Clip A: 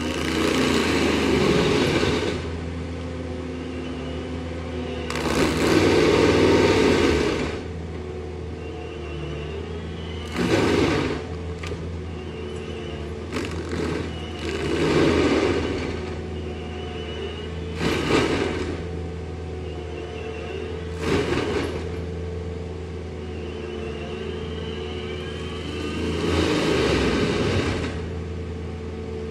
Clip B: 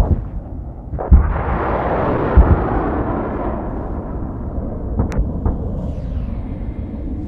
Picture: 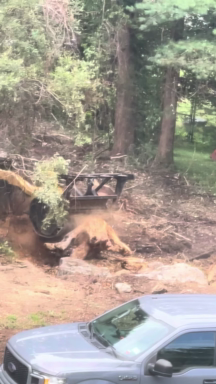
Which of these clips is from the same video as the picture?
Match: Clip A